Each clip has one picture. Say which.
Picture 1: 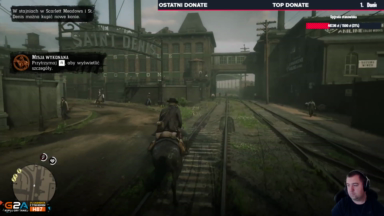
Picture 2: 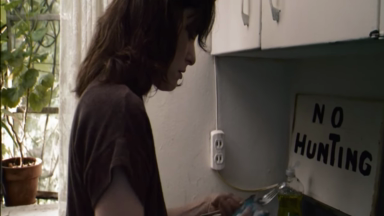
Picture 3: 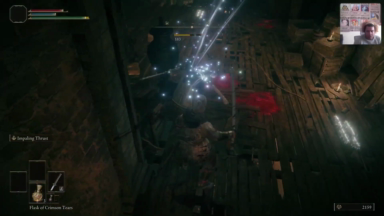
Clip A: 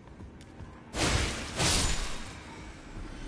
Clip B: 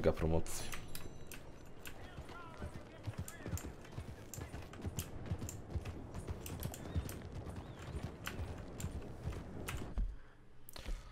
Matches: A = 3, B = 1